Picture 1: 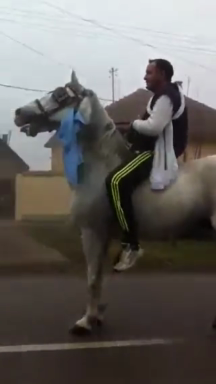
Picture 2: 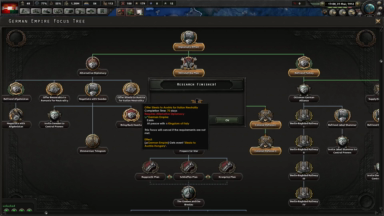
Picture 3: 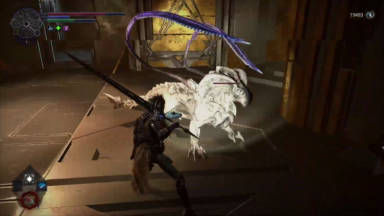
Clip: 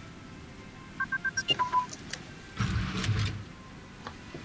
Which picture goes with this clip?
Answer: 2